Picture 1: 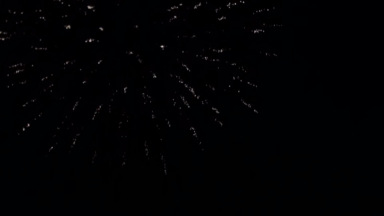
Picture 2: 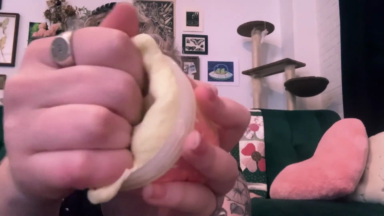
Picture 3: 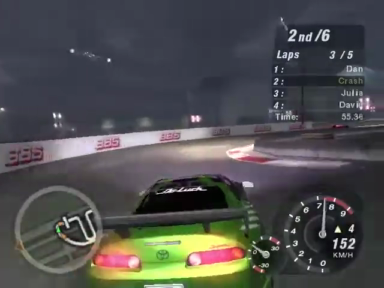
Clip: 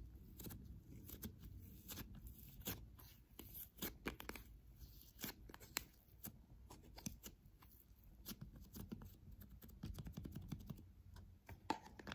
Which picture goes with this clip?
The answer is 2